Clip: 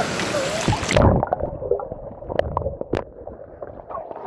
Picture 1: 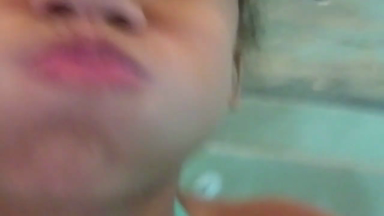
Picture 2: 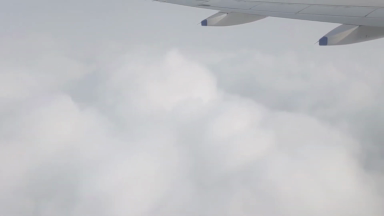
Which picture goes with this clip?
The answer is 1